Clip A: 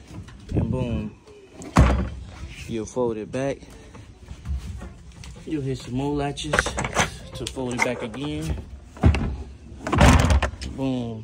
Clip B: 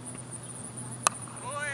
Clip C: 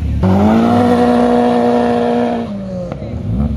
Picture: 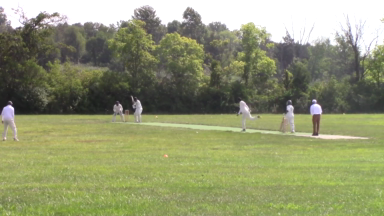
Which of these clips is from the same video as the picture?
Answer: B